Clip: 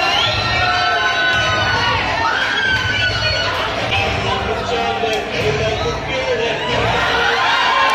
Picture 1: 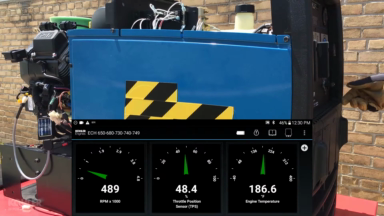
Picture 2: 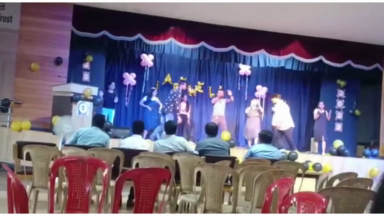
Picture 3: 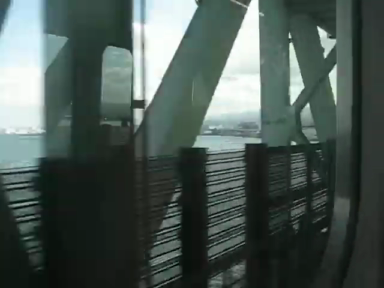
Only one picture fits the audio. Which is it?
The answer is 2